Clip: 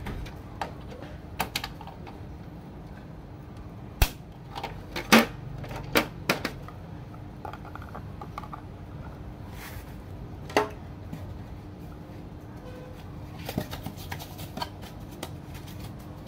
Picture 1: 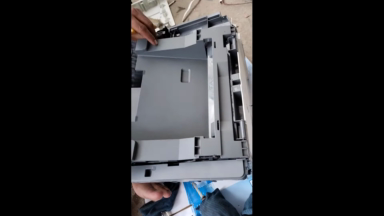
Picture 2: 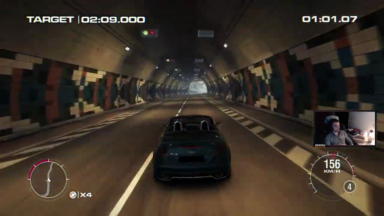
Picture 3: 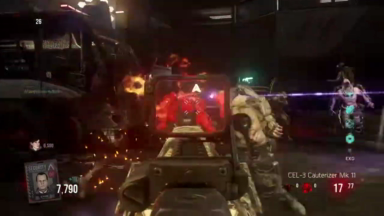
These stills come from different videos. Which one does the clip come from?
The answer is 1